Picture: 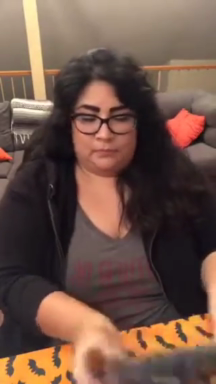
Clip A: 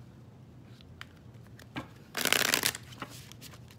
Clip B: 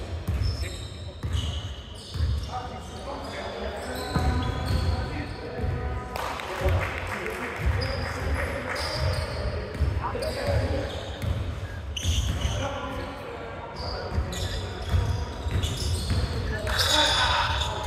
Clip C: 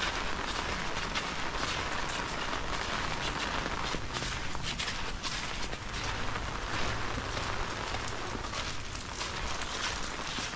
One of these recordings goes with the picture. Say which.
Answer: A